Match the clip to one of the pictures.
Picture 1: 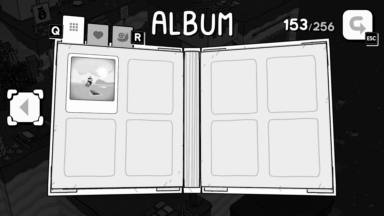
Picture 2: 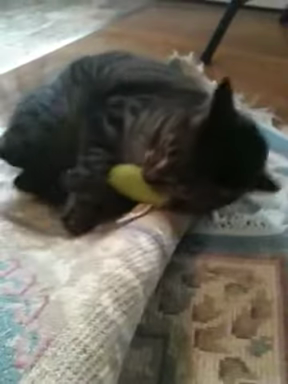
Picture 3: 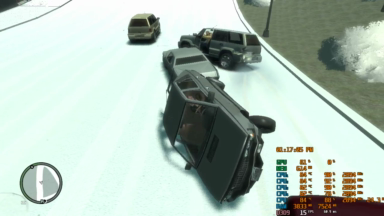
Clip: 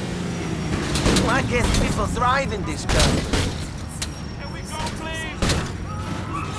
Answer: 3